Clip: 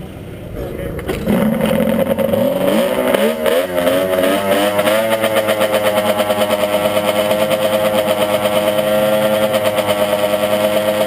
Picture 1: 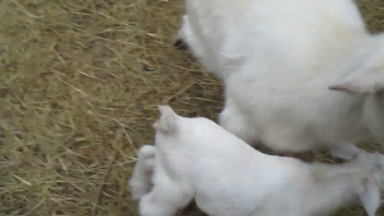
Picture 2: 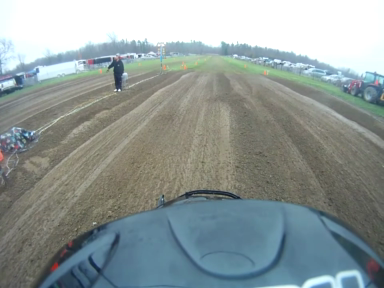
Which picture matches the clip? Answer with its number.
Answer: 2